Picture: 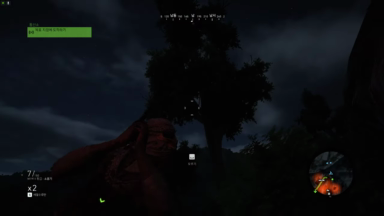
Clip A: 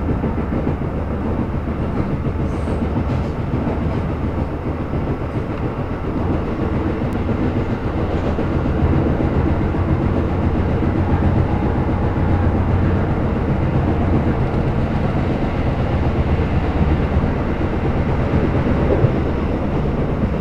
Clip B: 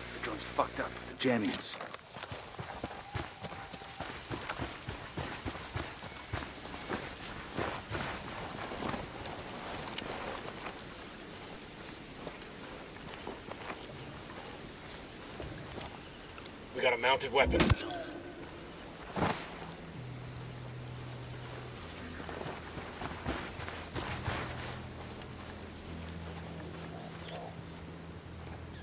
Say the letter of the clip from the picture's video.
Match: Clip B